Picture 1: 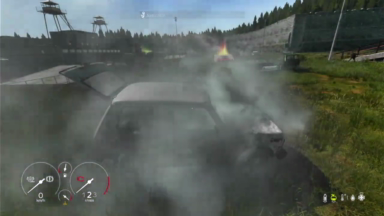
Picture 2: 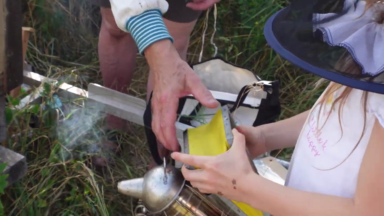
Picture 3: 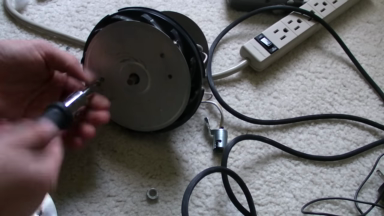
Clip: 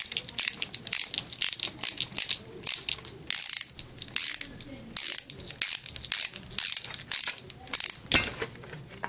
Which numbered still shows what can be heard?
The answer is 3